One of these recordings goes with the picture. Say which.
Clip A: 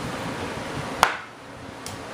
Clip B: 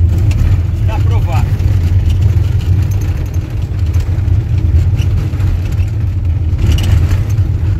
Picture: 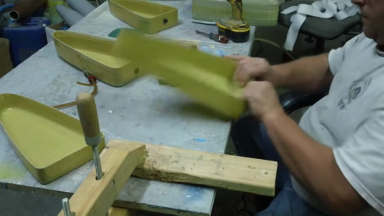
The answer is A